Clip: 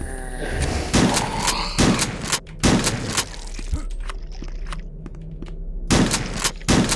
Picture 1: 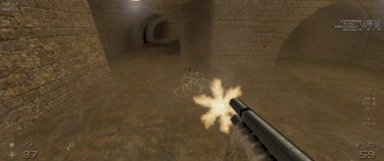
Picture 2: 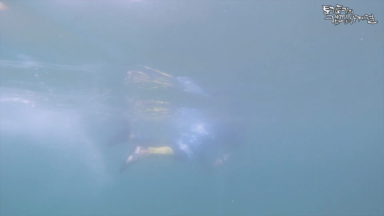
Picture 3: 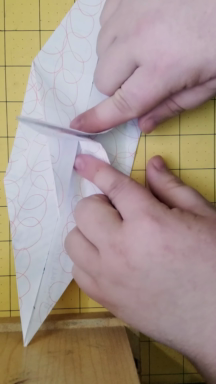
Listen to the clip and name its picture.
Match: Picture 1